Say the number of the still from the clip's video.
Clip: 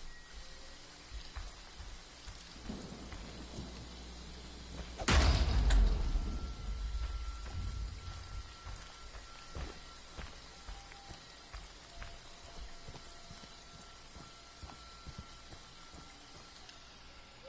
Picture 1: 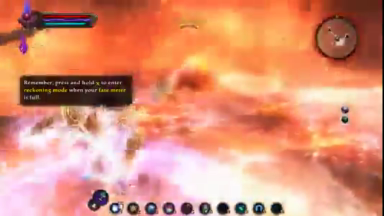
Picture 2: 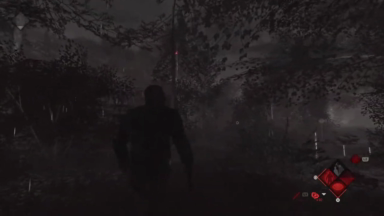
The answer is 2